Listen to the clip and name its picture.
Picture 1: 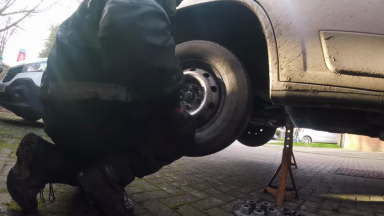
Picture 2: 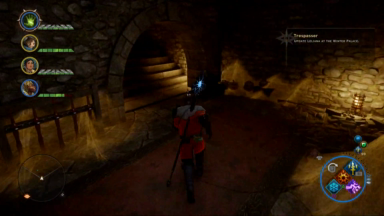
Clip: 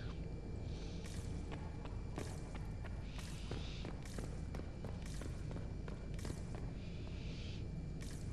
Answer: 2